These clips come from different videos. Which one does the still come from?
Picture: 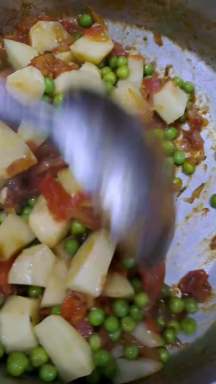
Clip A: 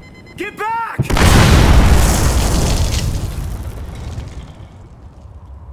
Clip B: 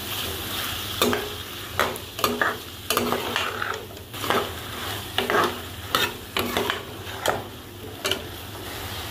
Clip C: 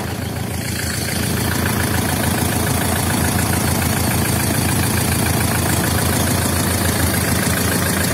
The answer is B